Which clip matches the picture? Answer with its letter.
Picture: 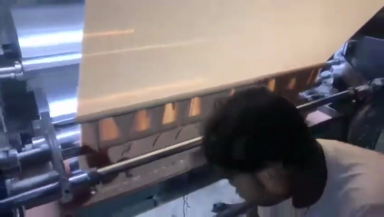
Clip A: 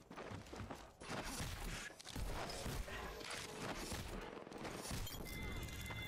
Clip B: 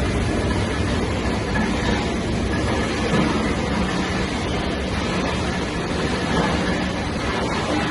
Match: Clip B